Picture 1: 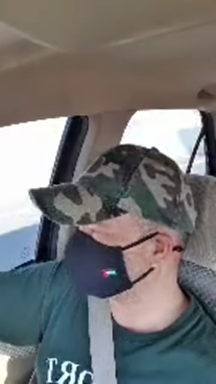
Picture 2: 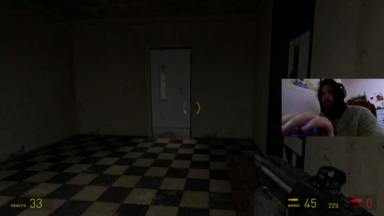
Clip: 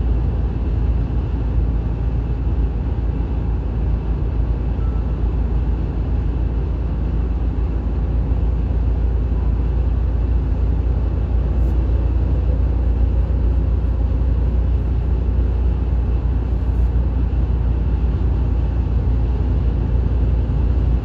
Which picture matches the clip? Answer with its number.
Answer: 1